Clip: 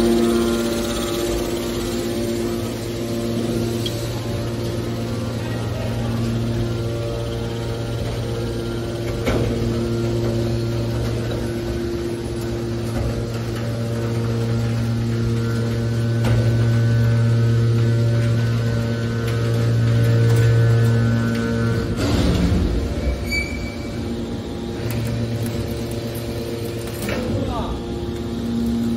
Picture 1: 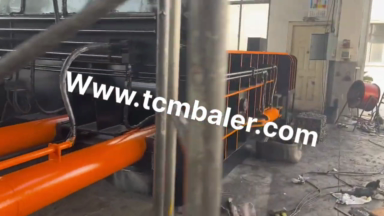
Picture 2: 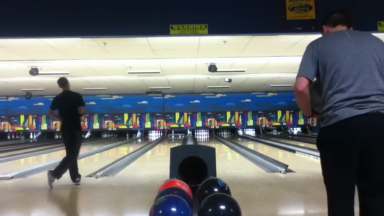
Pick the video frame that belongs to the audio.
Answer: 1